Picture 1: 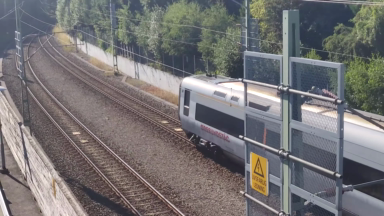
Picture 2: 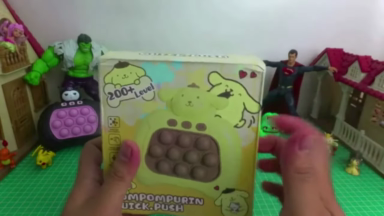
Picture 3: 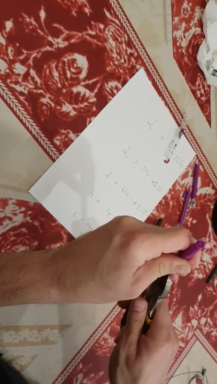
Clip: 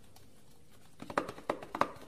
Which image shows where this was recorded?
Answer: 2